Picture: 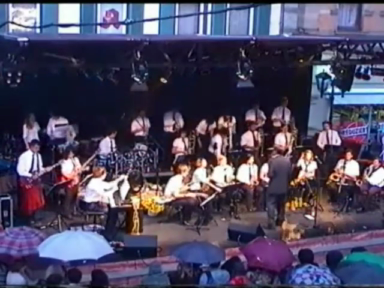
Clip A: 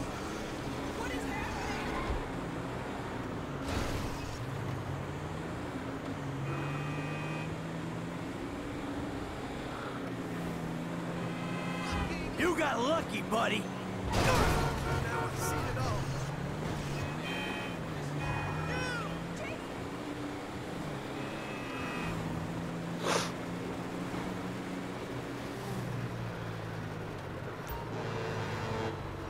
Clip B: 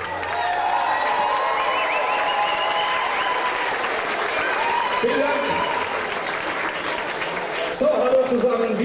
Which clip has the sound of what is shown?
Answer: B